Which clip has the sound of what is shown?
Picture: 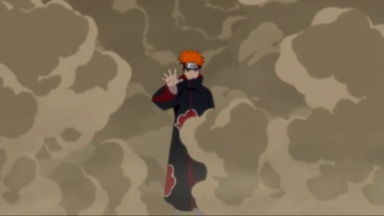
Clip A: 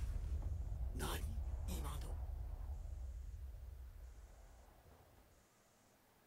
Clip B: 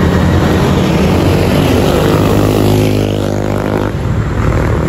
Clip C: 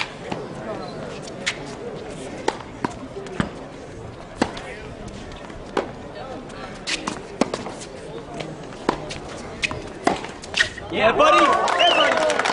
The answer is A